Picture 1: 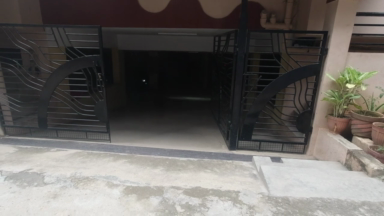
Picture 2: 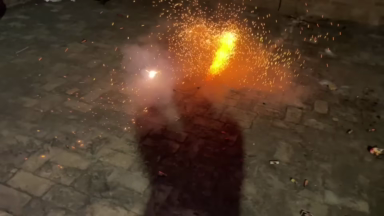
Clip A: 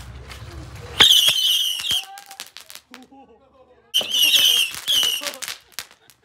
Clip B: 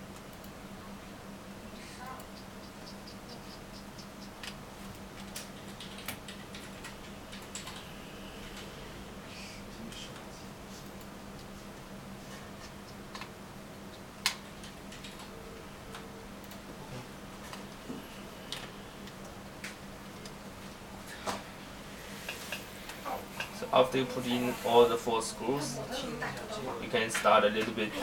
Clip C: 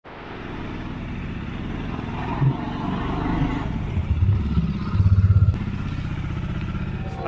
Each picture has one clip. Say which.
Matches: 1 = C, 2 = A